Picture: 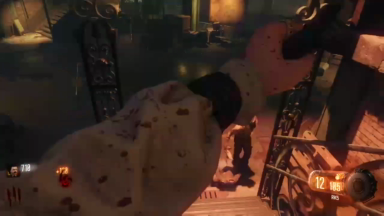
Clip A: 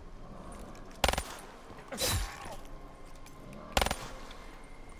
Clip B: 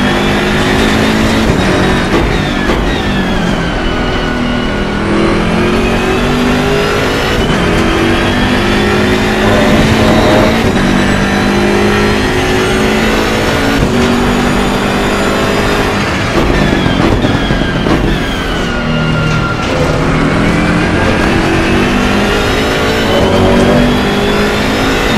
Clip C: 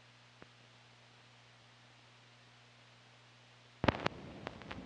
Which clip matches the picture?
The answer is A